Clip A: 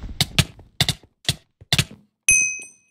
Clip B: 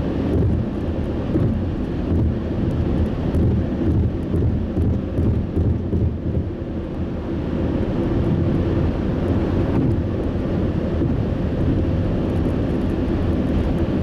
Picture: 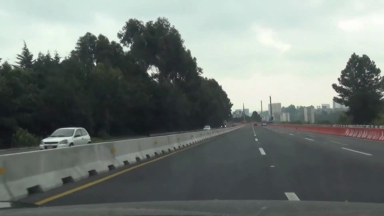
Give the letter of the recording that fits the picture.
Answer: B